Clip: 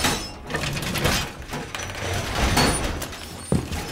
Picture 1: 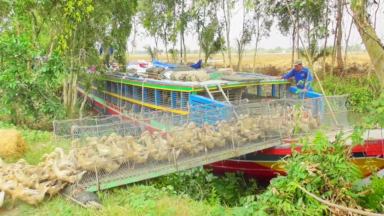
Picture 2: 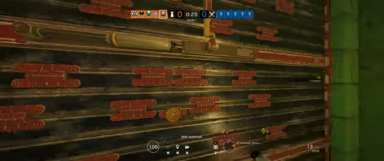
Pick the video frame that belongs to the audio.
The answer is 2